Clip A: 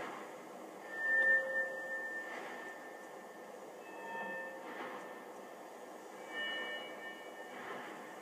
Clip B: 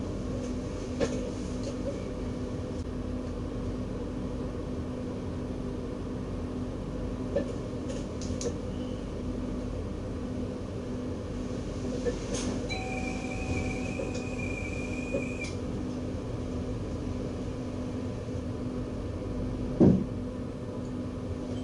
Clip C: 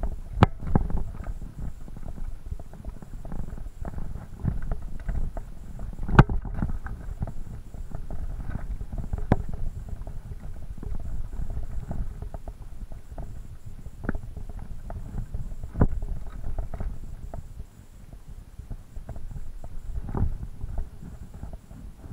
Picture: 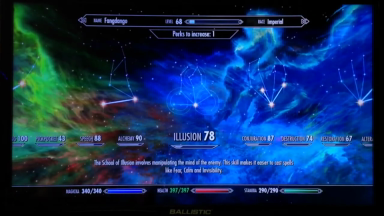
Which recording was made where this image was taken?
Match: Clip A